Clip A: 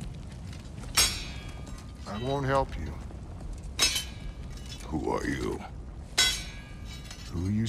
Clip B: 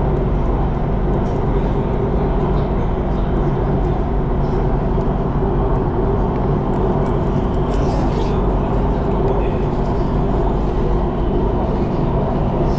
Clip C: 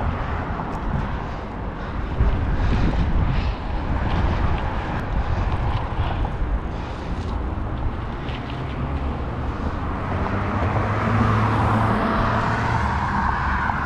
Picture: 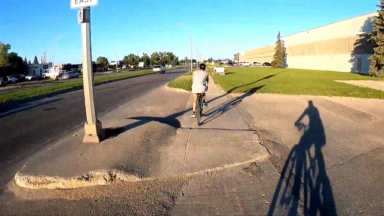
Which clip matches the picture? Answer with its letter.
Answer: C